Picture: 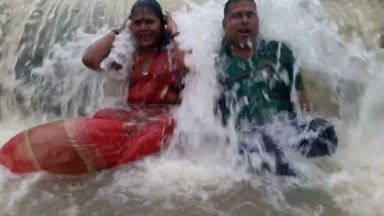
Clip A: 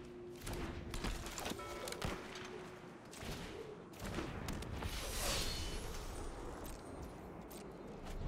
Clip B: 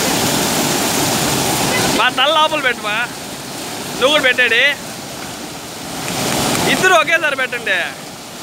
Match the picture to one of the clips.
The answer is B